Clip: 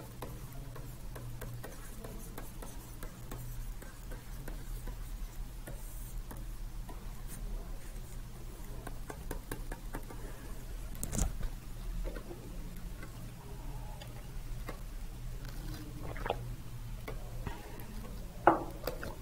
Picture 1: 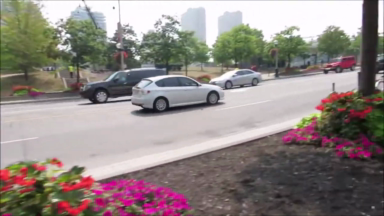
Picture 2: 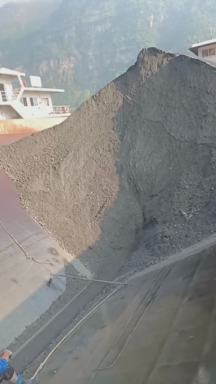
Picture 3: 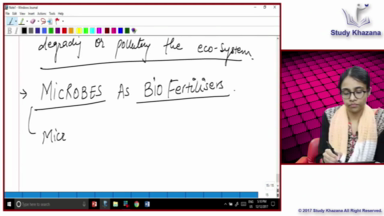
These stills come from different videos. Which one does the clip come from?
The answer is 3